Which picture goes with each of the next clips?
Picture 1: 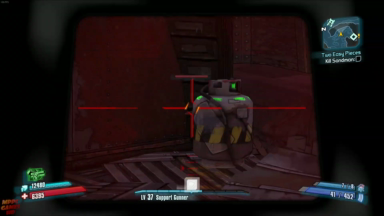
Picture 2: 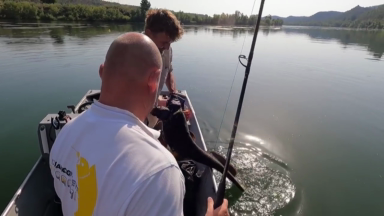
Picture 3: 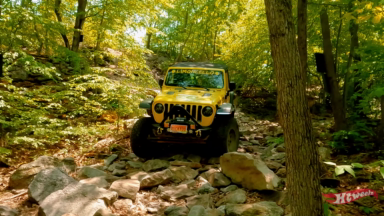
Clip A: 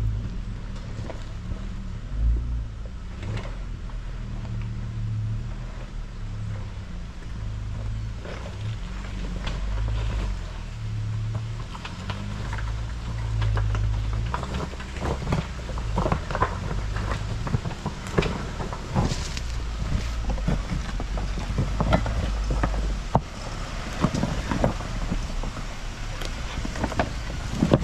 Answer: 3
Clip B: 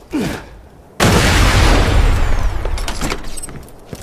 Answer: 1